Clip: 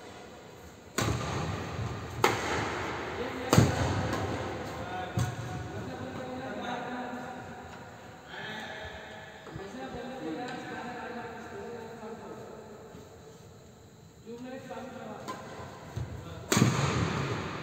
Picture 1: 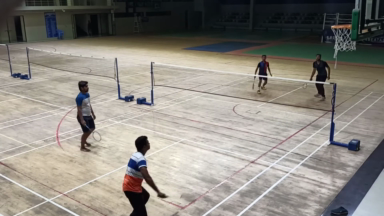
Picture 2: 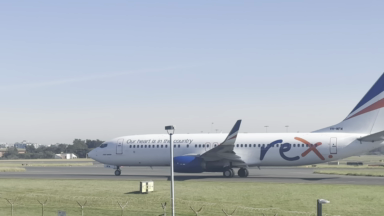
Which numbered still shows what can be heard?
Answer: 1